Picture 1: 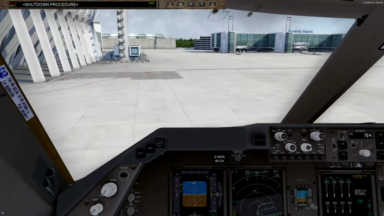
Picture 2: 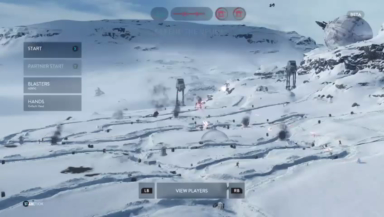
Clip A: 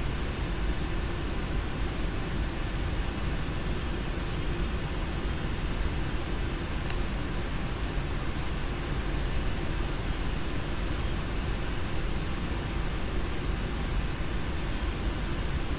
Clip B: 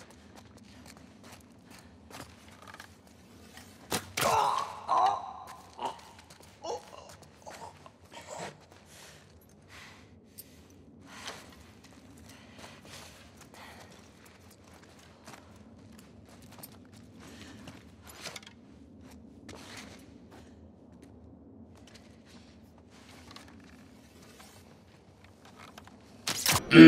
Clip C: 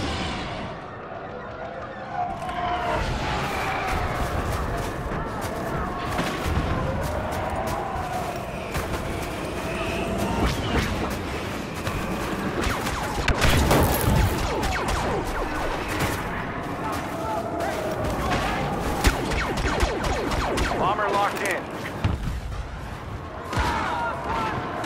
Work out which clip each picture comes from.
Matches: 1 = A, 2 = C